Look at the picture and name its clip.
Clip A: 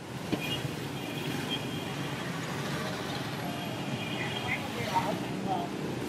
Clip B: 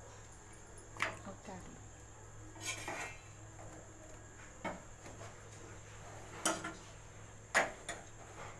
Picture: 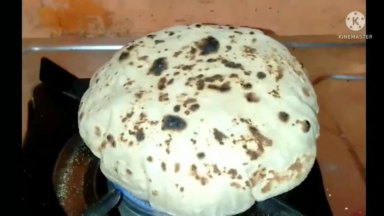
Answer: B